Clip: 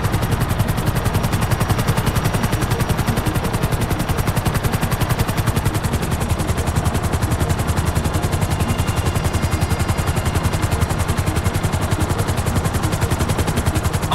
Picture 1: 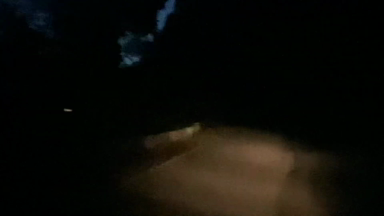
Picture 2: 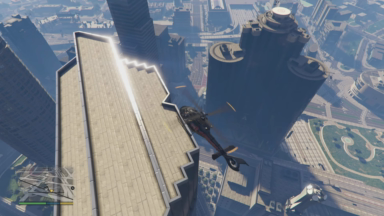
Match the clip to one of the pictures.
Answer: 2